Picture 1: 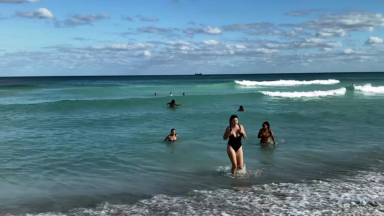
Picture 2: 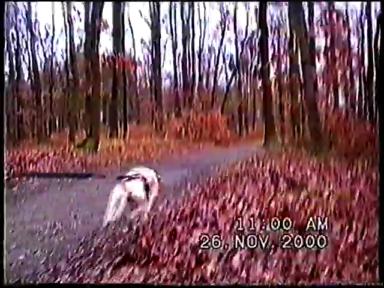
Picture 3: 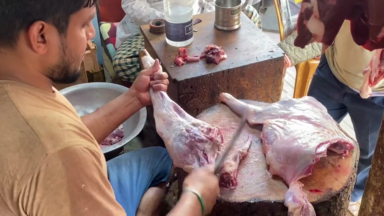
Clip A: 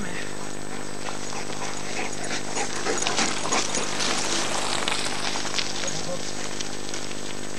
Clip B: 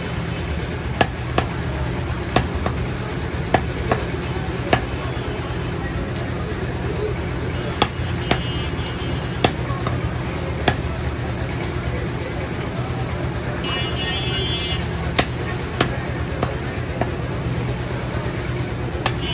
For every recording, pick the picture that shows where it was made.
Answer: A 2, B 3